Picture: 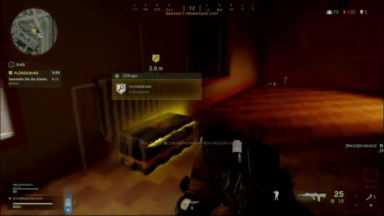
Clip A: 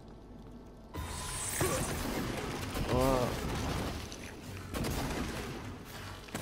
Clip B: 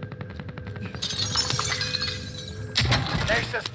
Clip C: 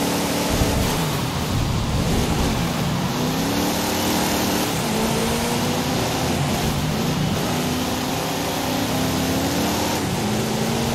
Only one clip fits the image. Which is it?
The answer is B